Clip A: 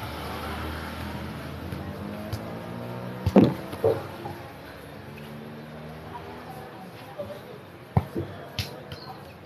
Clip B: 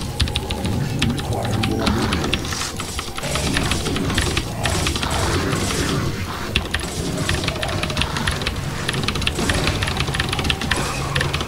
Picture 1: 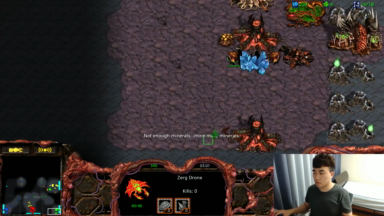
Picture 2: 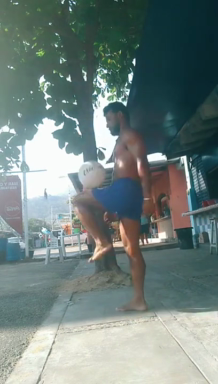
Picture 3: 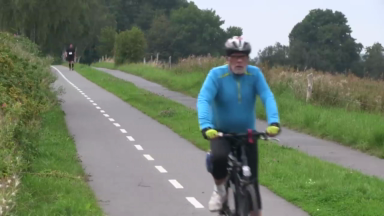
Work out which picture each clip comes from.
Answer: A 2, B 1